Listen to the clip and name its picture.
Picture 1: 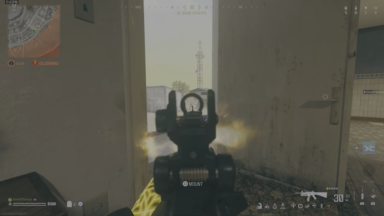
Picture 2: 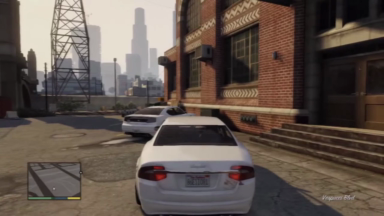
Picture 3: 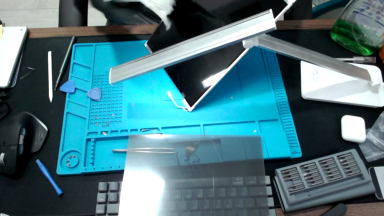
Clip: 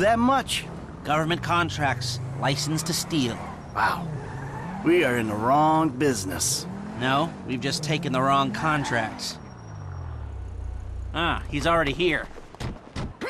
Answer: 2